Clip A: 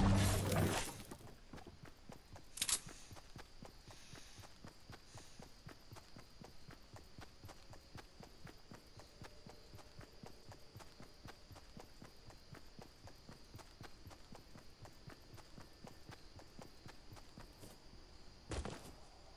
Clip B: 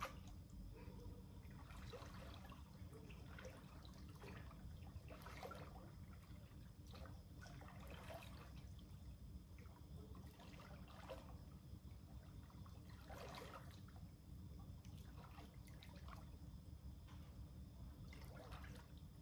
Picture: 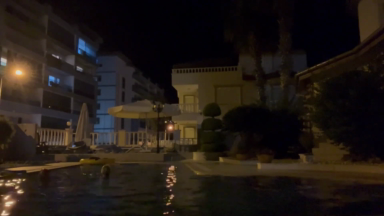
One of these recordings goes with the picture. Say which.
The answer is B